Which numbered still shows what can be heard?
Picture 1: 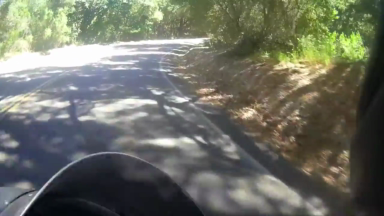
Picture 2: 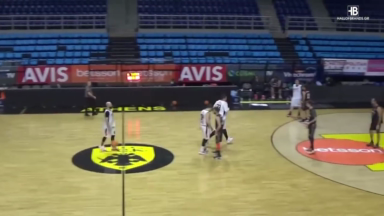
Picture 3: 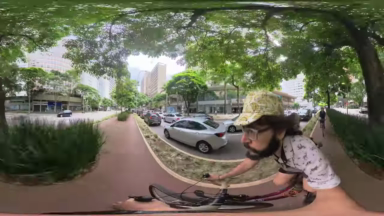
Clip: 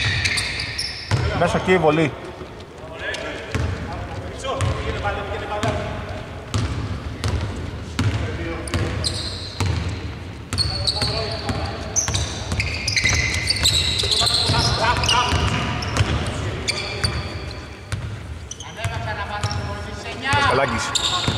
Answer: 2